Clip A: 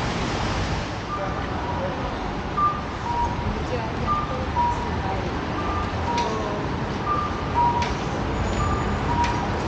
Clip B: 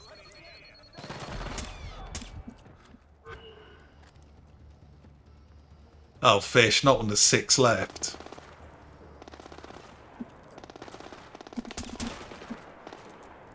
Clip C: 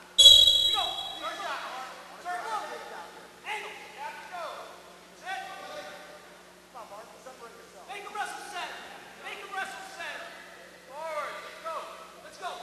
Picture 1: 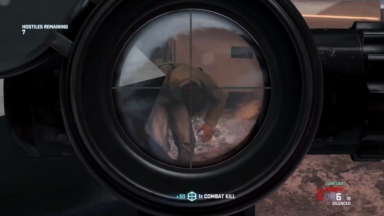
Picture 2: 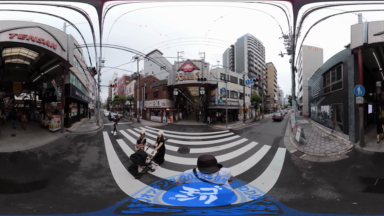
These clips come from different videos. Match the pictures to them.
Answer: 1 B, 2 A